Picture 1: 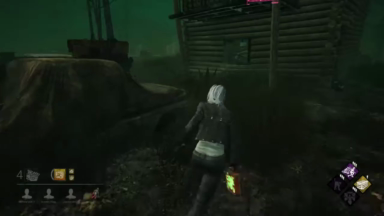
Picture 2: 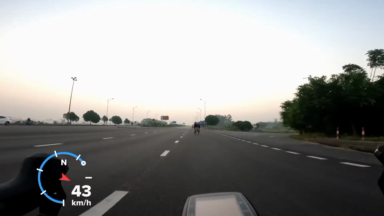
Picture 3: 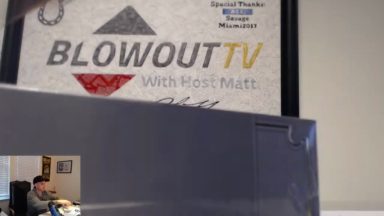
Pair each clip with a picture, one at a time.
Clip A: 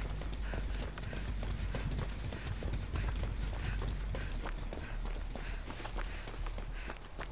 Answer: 1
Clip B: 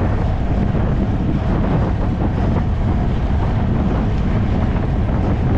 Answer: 2